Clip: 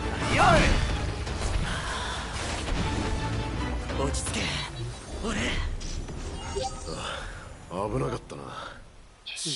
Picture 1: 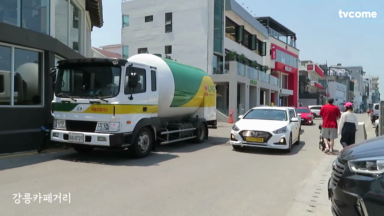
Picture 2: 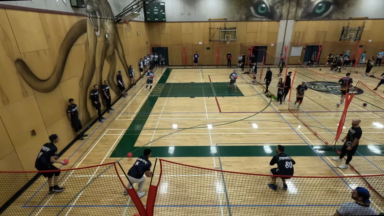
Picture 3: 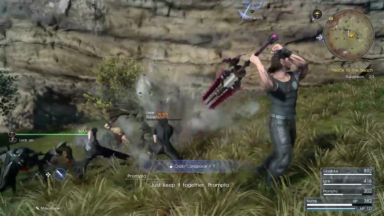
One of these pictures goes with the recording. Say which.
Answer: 3